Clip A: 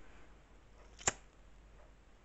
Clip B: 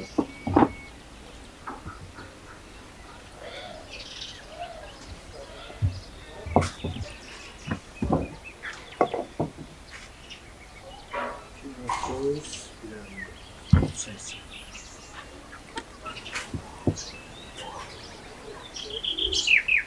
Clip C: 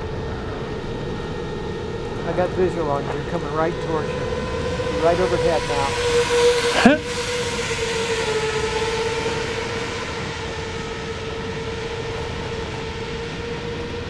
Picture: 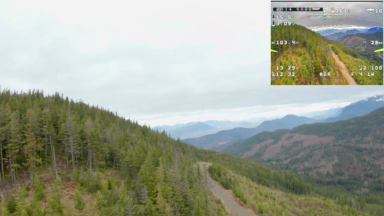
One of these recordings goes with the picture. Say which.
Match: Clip C